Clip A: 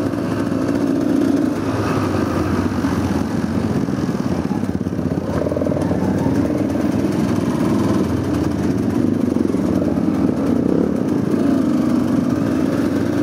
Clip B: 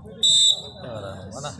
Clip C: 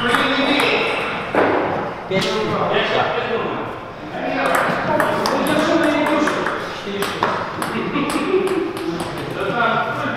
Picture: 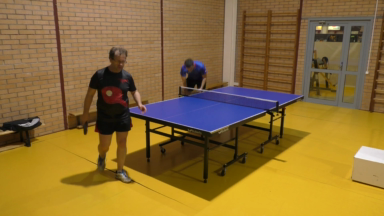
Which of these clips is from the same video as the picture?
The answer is C